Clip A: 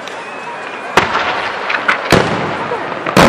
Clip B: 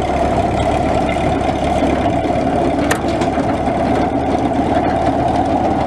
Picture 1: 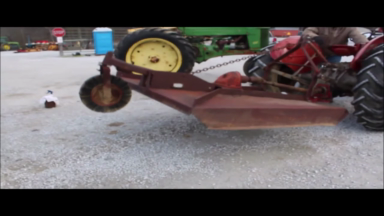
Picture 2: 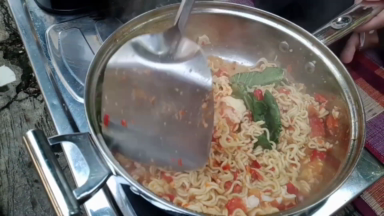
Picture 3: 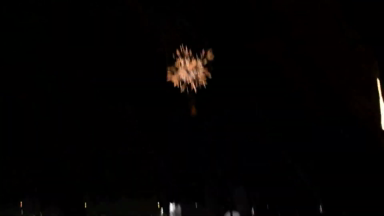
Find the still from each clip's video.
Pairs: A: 3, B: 1